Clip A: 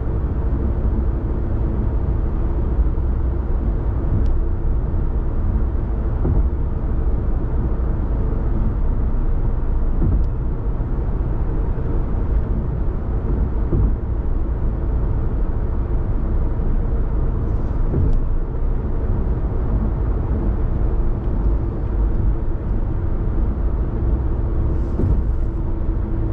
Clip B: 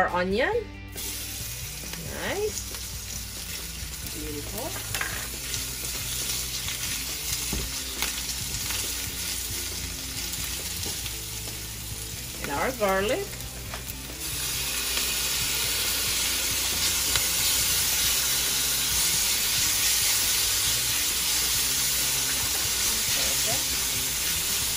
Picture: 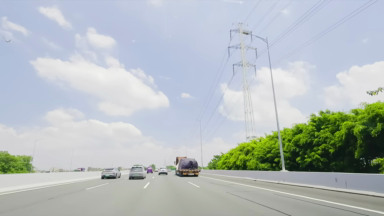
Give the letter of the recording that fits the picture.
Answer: A